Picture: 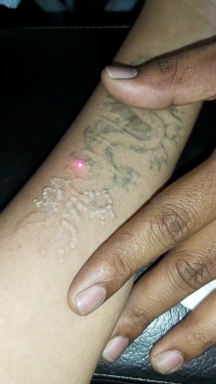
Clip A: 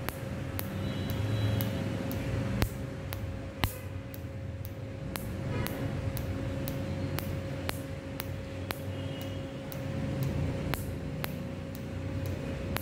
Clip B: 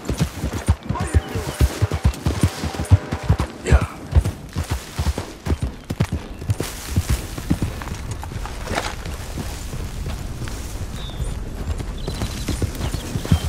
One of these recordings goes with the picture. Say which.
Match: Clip A